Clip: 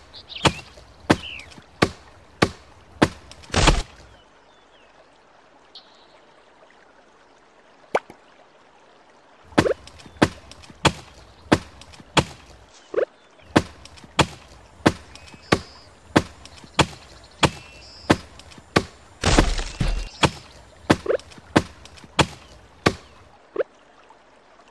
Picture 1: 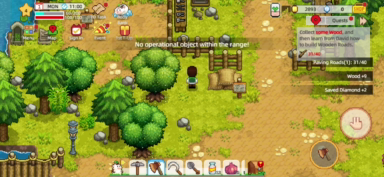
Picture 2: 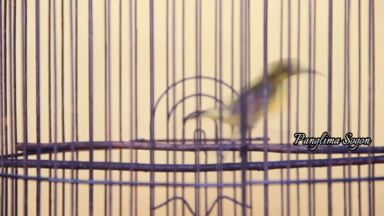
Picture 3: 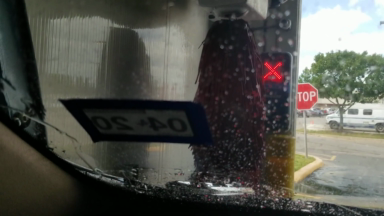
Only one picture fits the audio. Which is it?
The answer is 1